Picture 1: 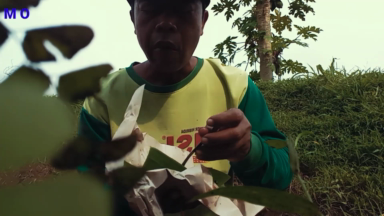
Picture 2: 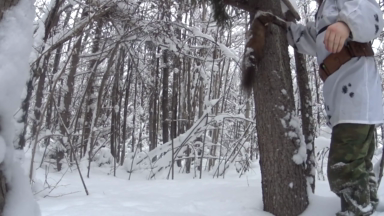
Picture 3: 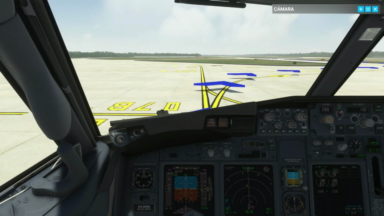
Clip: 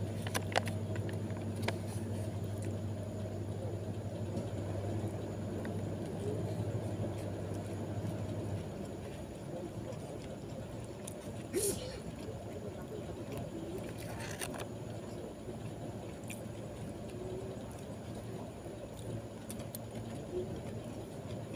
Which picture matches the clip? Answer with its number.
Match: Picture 1